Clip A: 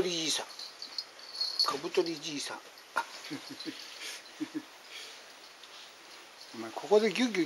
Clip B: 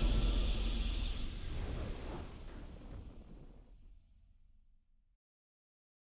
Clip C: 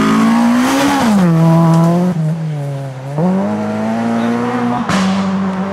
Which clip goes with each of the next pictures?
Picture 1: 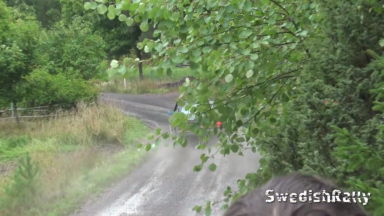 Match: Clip C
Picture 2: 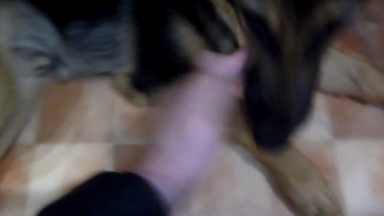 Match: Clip A